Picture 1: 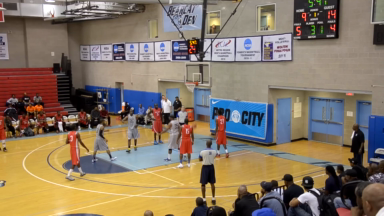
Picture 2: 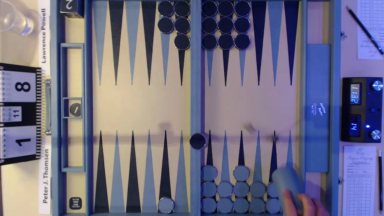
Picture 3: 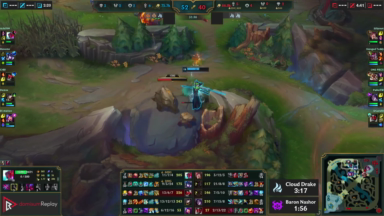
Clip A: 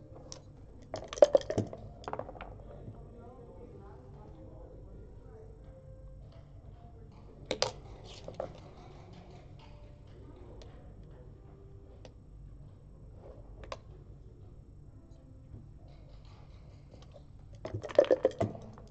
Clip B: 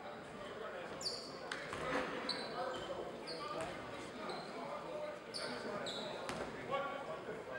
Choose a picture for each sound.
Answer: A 2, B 1